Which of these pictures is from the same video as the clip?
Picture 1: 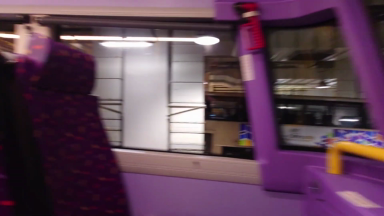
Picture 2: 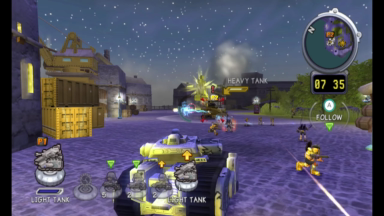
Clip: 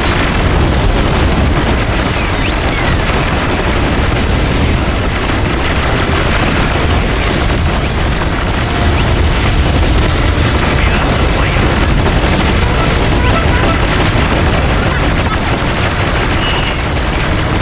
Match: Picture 2